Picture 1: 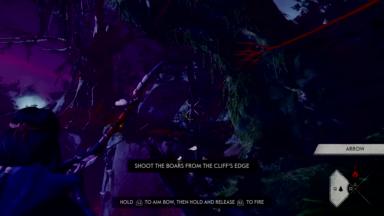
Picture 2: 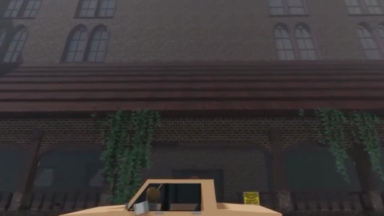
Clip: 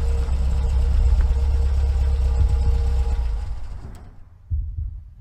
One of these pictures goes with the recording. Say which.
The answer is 2